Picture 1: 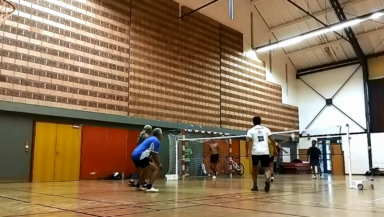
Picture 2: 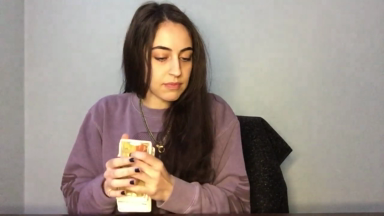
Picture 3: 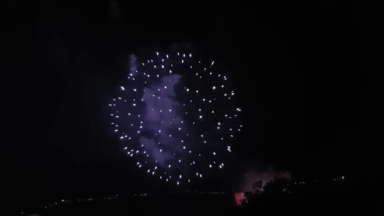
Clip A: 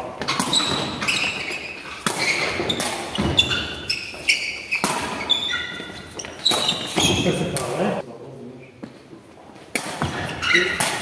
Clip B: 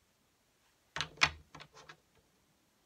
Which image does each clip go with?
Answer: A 1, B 2